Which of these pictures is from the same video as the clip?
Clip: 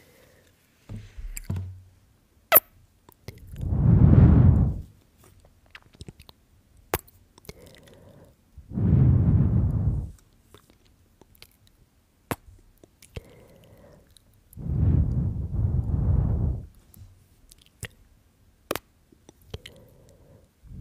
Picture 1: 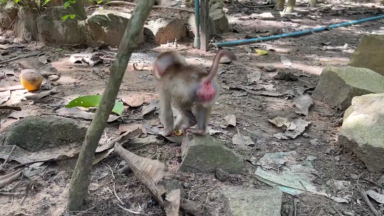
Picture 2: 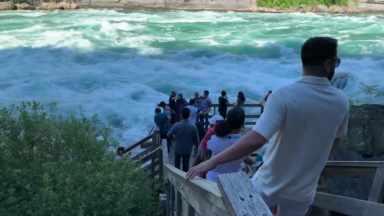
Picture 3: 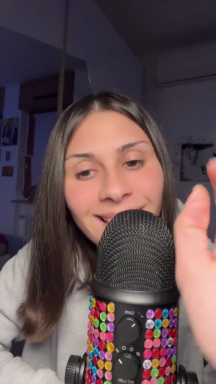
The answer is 3